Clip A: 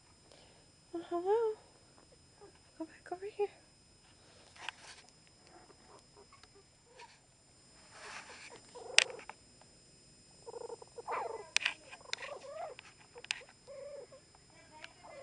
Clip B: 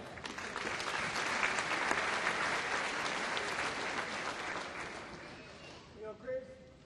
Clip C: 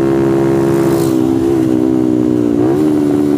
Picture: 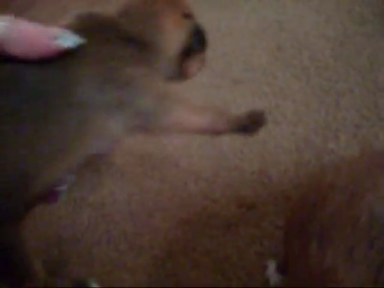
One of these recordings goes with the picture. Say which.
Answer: A